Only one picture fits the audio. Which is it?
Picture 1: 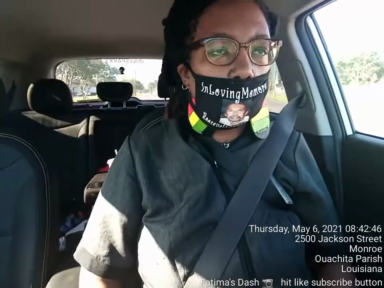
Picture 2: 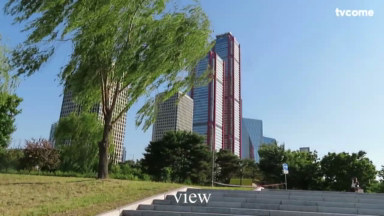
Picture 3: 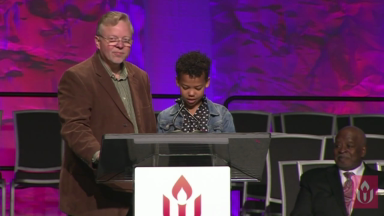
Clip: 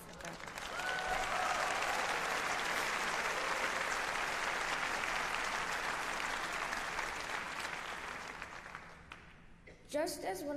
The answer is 3